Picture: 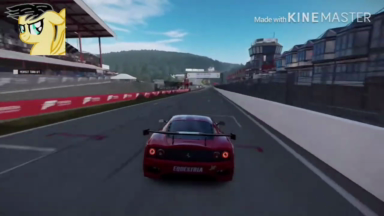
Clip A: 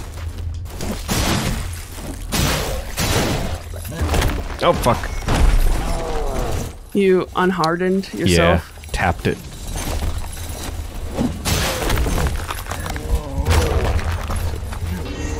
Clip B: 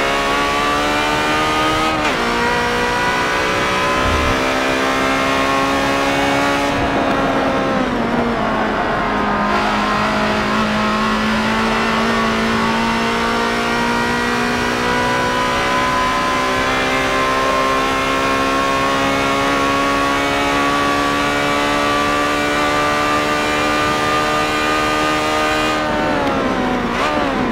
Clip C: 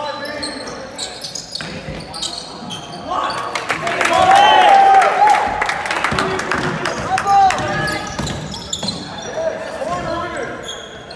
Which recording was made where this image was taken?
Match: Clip B